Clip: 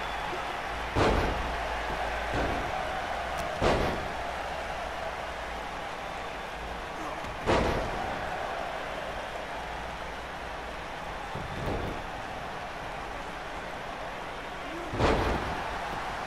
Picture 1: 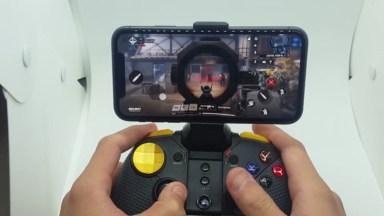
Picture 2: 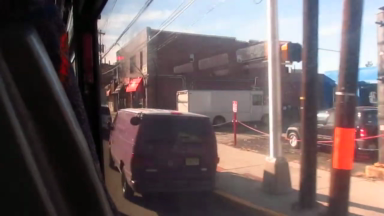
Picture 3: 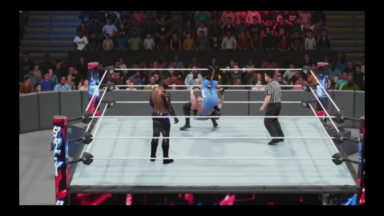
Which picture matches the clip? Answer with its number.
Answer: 3